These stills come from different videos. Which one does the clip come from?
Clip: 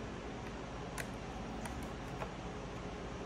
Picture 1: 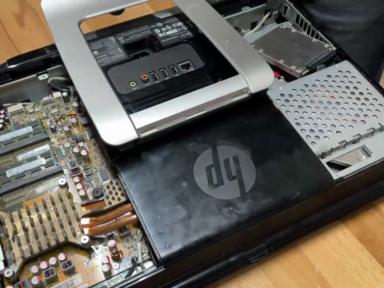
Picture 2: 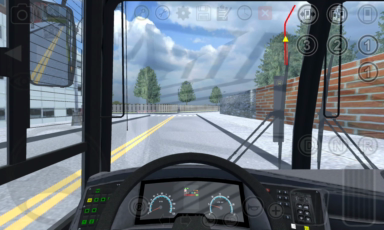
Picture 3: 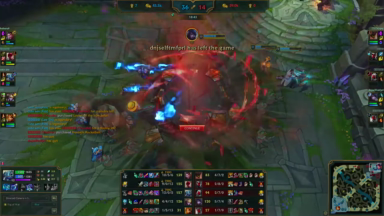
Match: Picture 1